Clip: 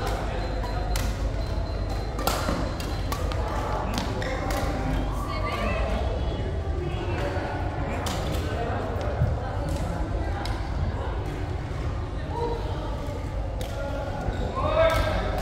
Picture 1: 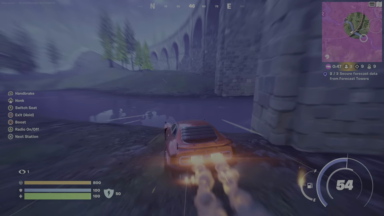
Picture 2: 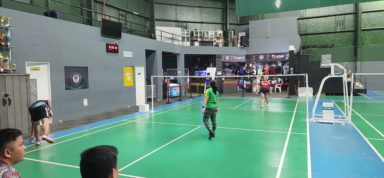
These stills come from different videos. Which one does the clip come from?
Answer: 2